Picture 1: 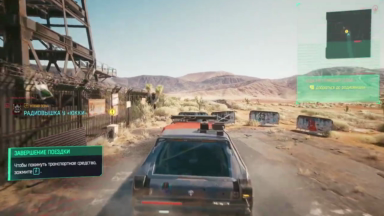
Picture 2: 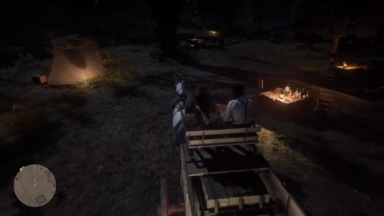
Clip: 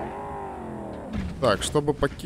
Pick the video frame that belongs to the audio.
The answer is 1